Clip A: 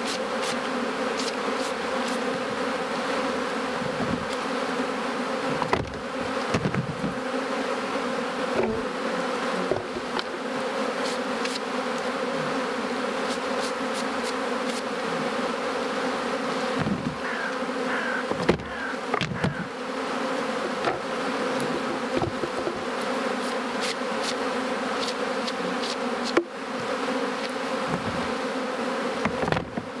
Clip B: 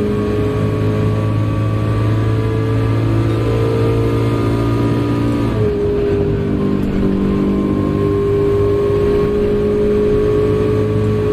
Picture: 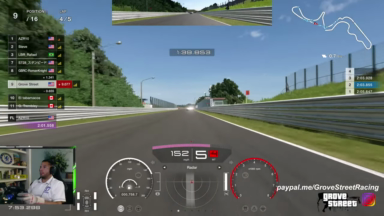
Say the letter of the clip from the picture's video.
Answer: B